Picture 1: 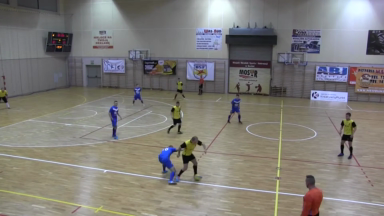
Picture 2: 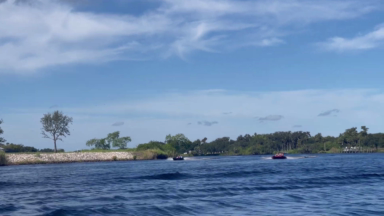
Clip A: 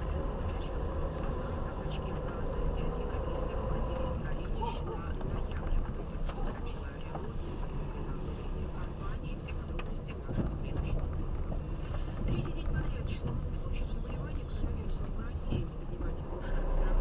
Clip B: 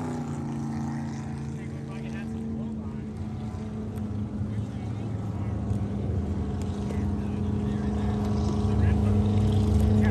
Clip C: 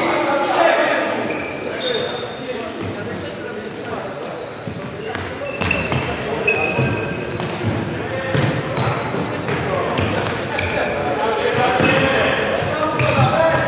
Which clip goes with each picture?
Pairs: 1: C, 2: B